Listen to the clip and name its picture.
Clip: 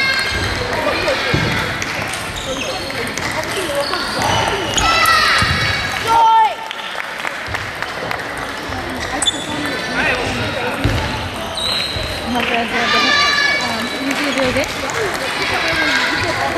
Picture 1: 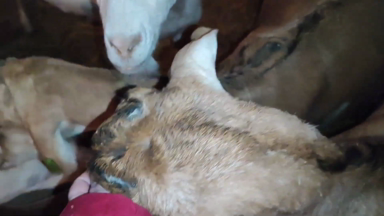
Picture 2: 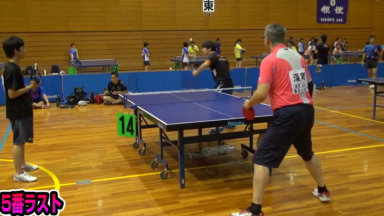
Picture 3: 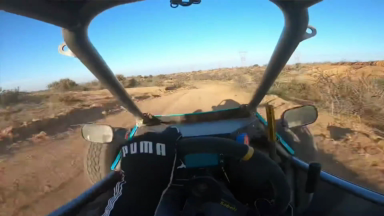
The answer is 2